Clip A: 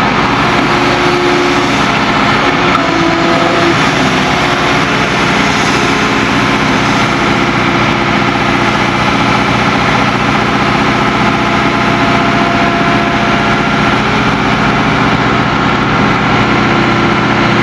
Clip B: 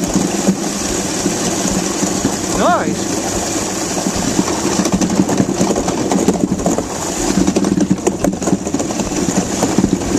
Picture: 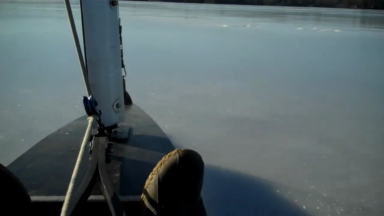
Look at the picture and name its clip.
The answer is B